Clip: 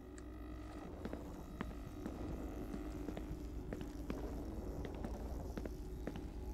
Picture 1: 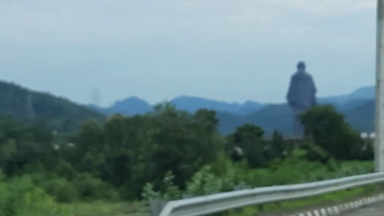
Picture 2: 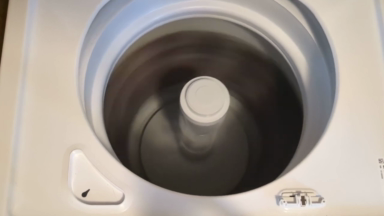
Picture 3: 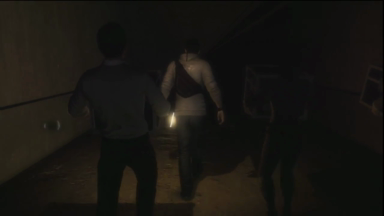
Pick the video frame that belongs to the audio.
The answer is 3